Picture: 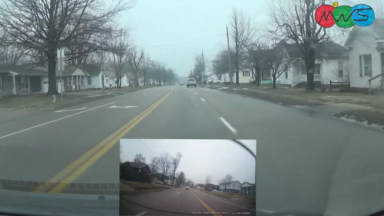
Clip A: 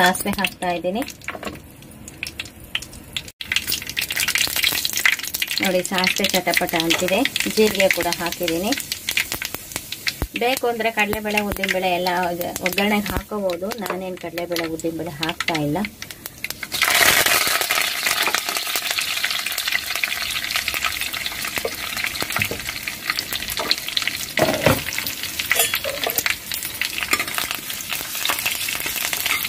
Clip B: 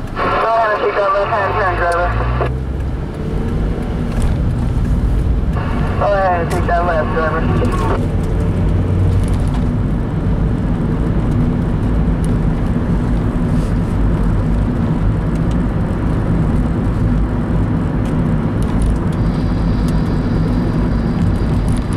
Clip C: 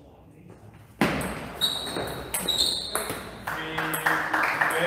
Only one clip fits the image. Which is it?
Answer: B